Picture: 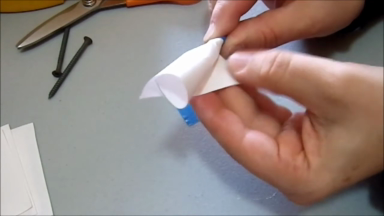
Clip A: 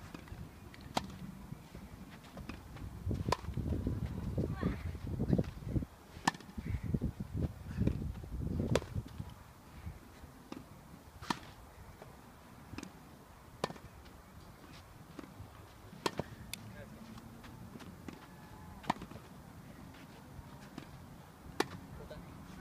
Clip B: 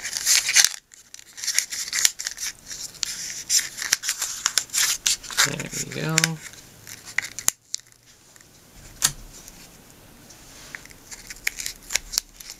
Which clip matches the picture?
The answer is B